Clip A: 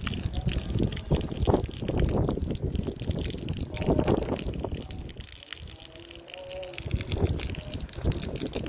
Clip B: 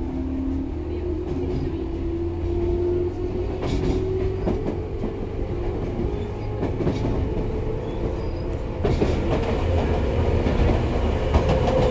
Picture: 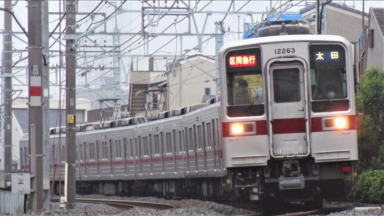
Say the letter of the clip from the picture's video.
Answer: B